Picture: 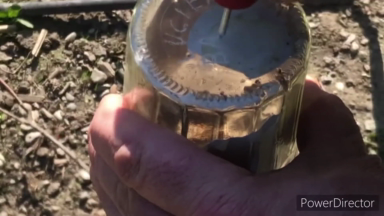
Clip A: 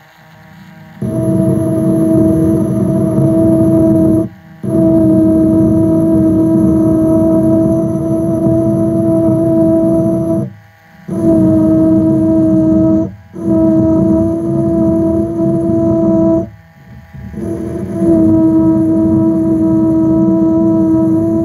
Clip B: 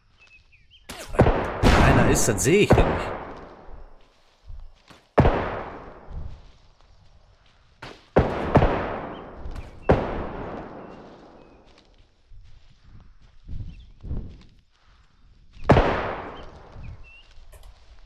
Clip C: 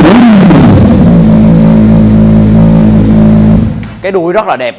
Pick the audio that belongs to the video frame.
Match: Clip A